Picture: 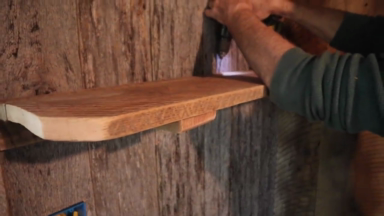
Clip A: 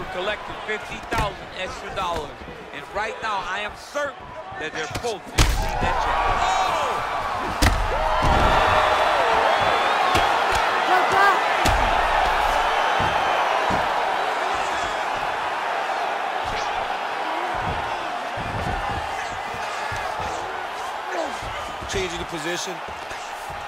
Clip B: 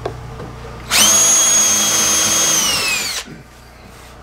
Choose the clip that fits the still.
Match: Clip B